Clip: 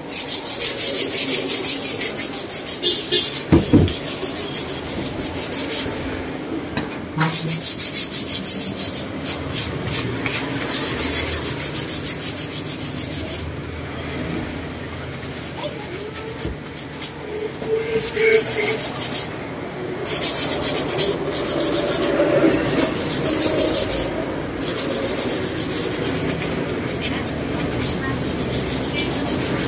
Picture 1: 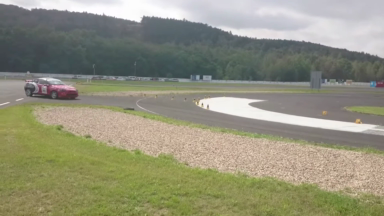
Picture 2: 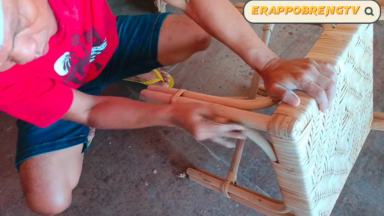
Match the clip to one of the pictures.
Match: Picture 2